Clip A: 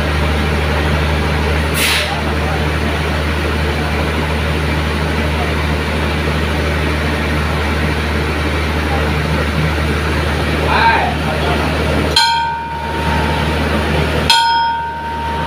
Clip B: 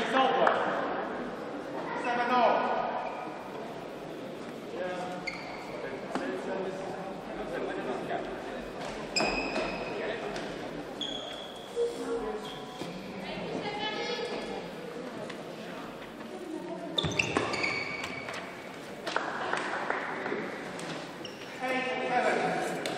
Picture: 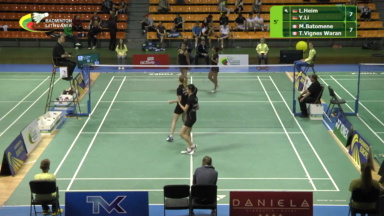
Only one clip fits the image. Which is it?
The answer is B